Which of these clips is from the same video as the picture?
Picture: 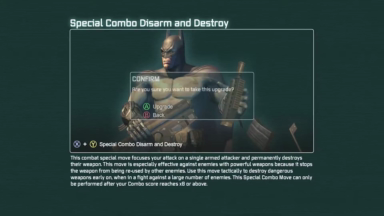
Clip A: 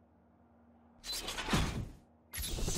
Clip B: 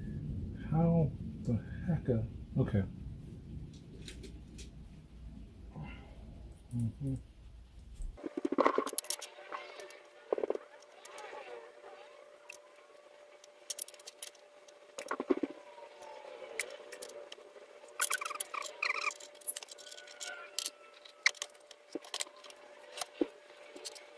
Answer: A